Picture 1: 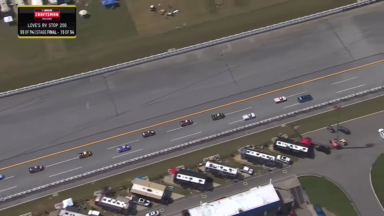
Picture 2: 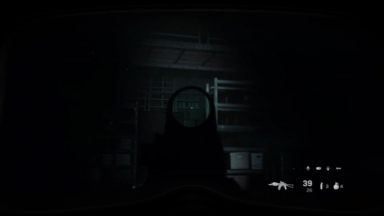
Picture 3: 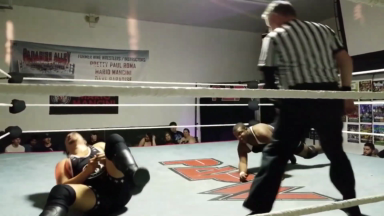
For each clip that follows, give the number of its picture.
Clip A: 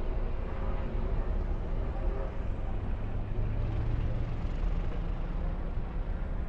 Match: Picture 1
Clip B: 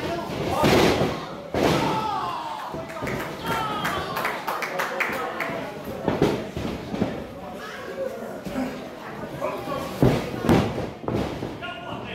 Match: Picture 3